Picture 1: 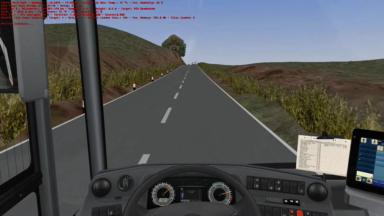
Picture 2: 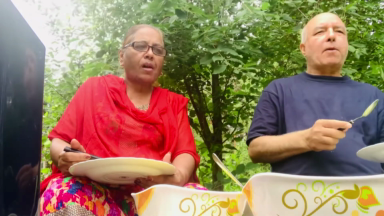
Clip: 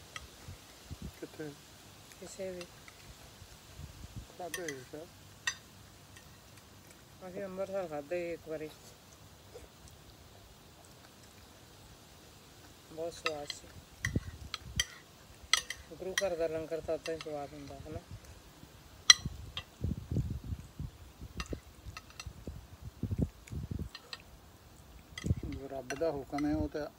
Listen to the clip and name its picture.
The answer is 2